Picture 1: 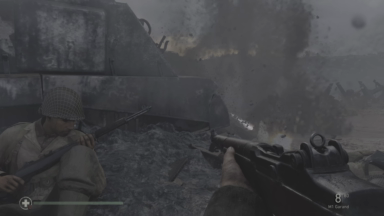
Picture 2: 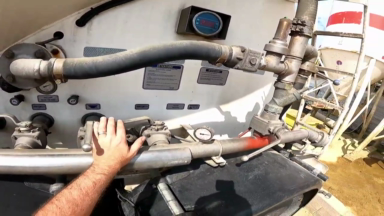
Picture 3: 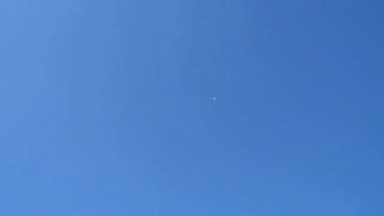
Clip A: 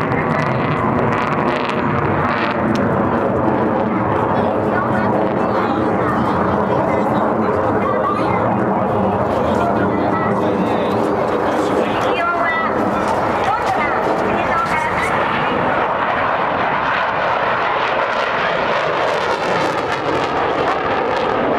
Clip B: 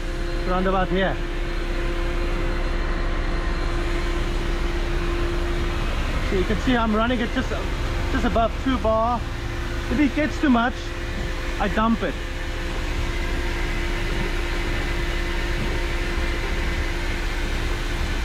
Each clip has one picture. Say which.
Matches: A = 3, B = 2